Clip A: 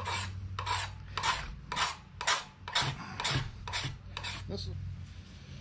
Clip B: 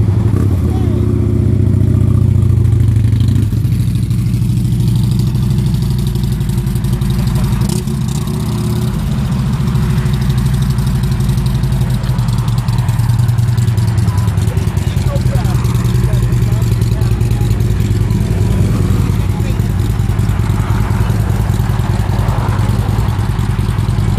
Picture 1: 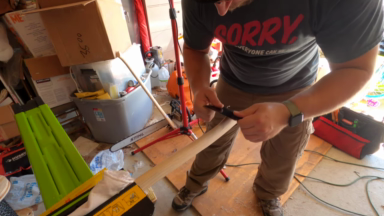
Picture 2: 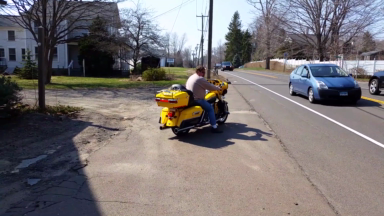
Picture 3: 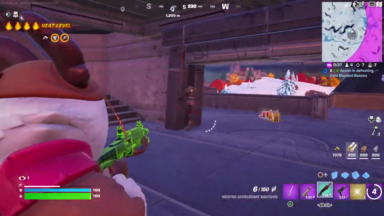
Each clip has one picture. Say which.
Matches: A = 1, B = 2